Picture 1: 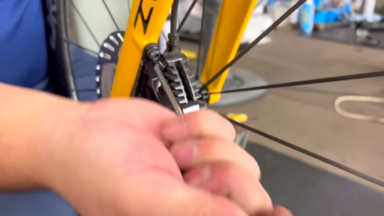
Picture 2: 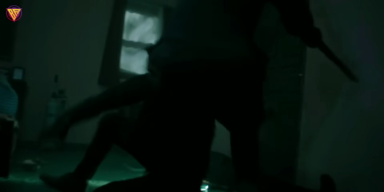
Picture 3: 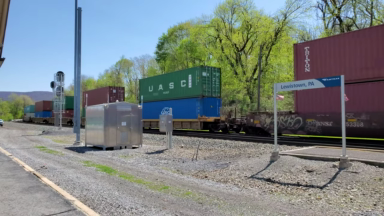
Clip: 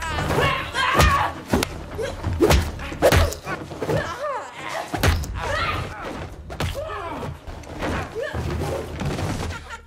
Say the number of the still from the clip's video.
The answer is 2